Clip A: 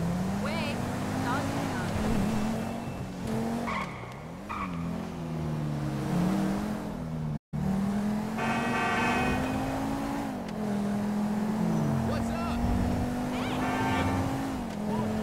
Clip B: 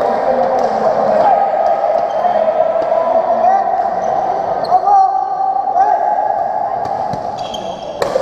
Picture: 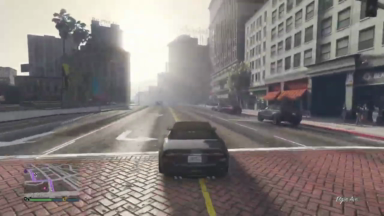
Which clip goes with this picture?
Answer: A